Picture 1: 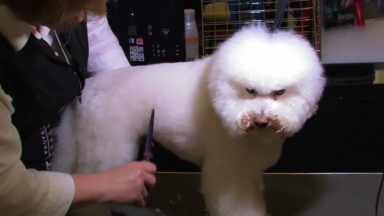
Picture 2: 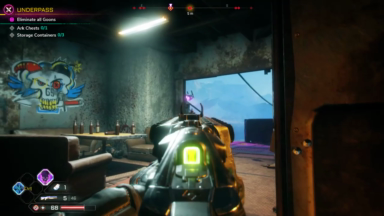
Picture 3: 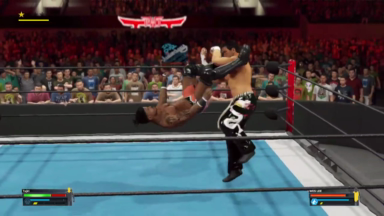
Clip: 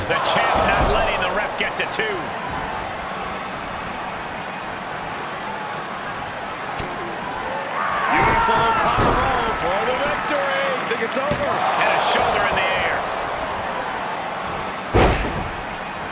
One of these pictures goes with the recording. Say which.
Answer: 3